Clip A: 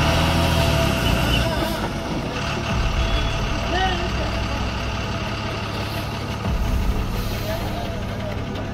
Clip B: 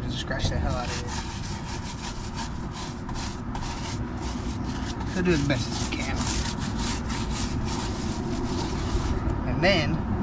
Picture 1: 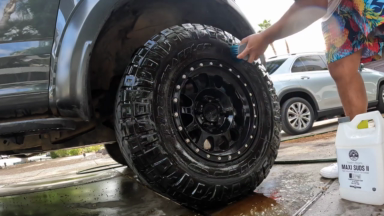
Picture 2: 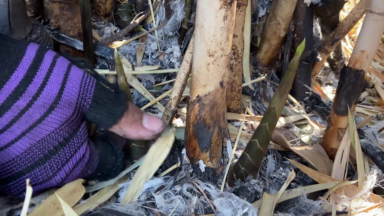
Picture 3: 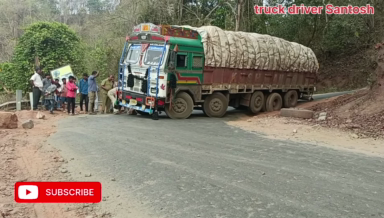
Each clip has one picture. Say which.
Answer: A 3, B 1